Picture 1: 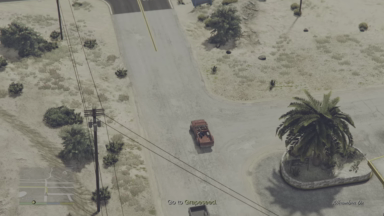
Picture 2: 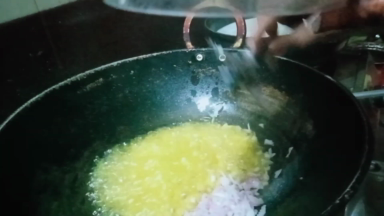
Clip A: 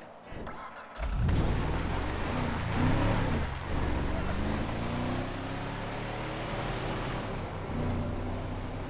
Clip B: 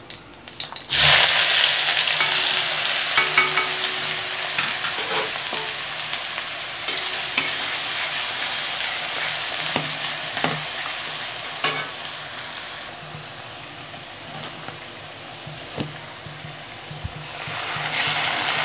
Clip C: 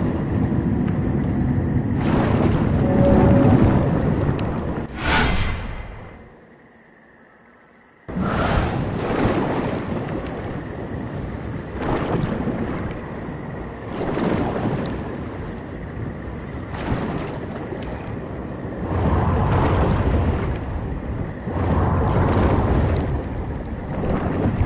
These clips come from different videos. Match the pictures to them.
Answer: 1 A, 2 B